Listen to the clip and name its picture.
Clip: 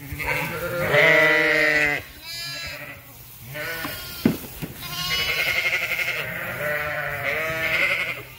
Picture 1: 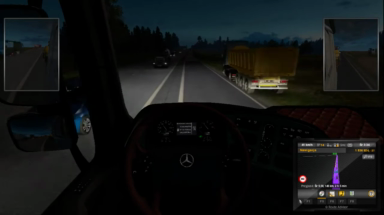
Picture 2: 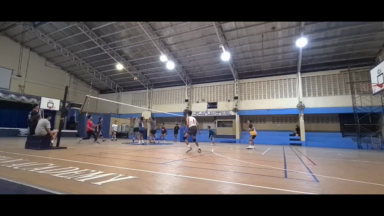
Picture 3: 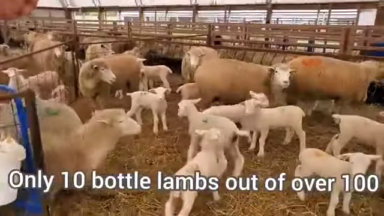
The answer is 3